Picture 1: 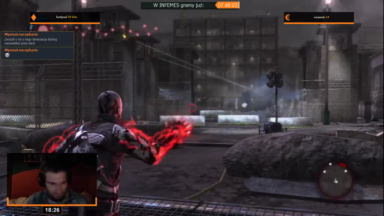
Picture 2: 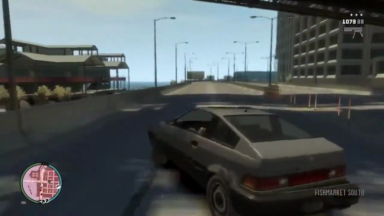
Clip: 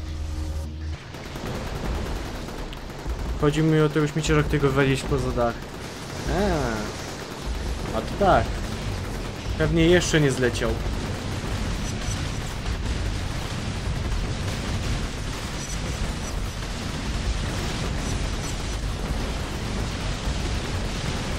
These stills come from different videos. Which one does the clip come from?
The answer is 1